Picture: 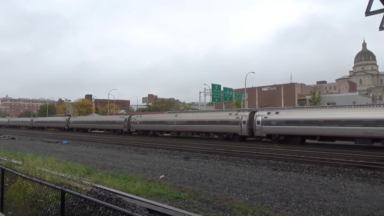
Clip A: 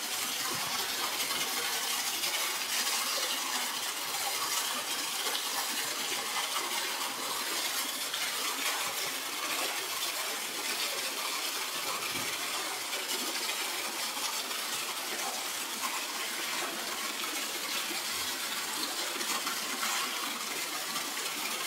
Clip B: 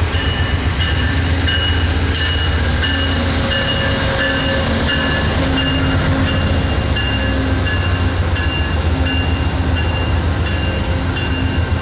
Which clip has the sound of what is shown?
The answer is B